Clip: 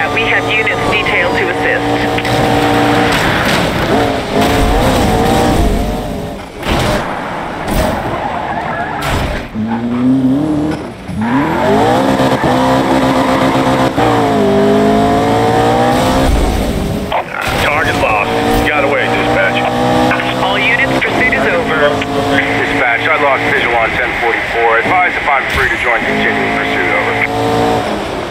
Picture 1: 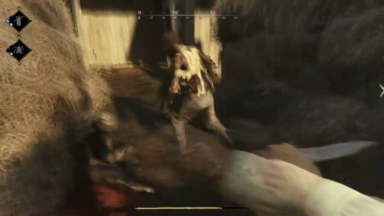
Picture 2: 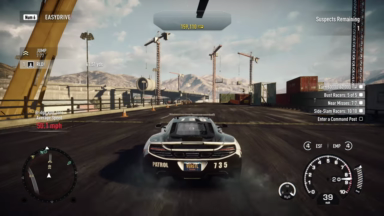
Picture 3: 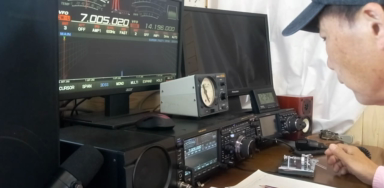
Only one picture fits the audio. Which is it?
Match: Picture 2